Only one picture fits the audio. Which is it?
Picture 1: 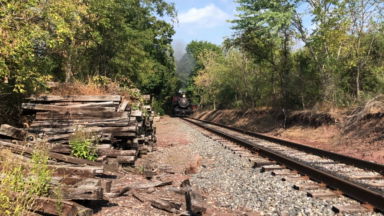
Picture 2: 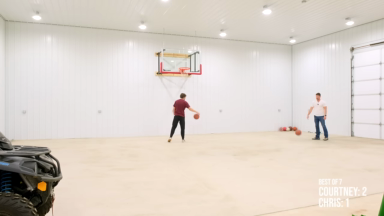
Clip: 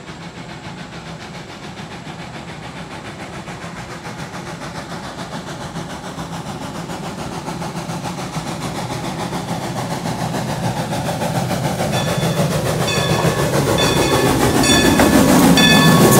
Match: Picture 1